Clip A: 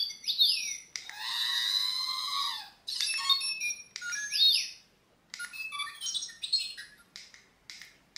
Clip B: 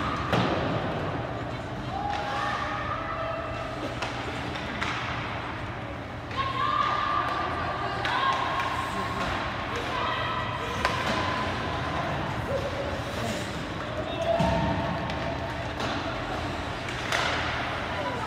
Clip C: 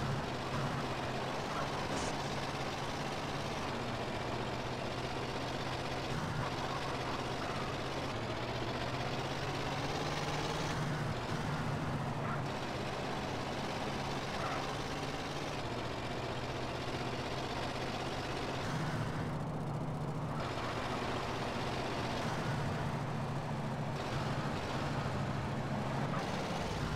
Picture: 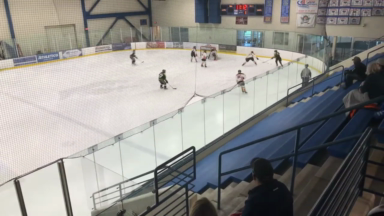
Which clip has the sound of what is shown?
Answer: B